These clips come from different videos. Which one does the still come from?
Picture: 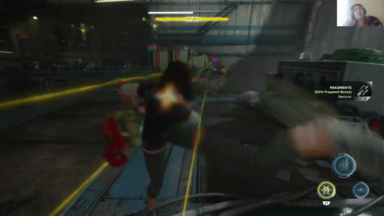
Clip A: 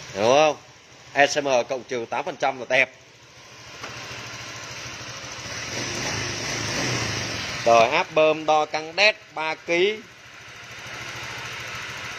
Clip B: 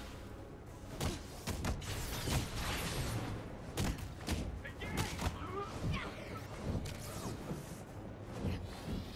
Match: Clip B